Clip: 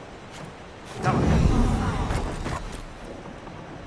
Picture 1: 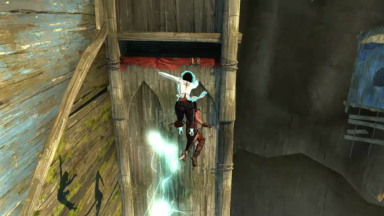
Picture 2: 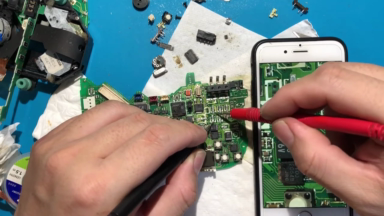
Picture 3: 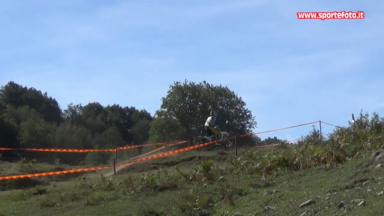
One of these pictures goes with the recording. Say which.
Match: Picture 1